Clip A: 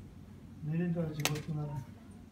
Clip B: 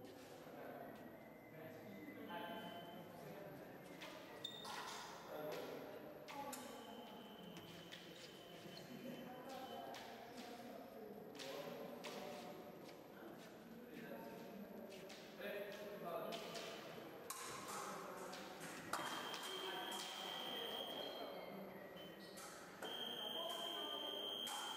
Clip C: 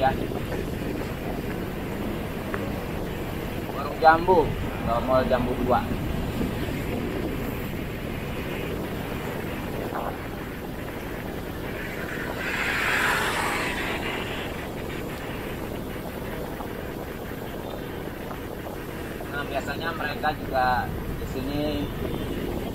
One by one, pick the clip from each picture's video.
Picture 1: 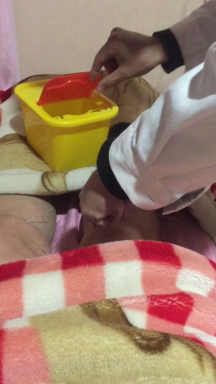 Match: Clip A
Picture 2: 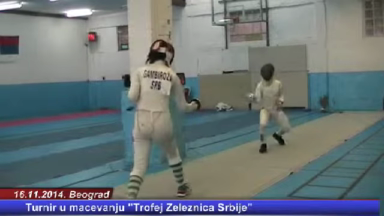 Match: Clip B